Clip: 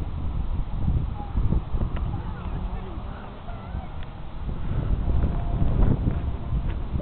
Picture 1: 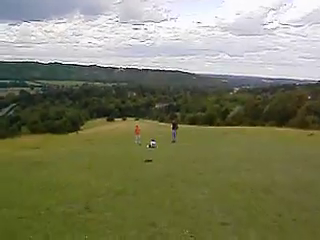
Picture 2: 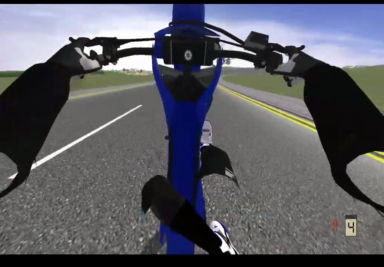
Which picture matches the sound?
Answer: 1